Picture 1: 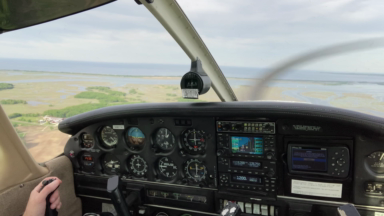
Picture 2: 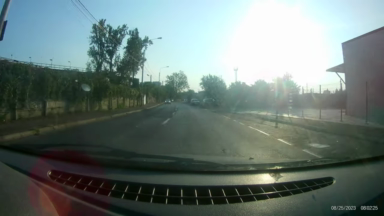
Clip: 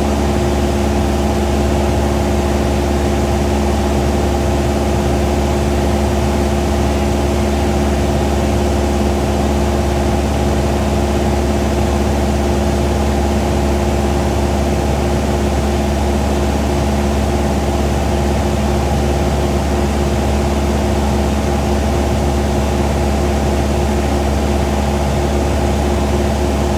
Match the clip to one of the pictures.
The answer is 1